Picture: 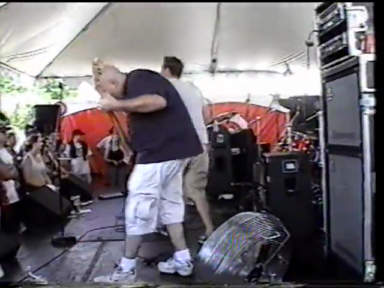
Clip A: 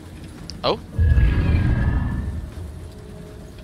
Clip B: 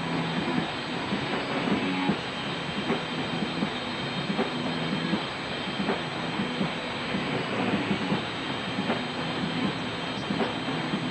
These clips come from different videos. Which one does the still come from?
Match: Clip B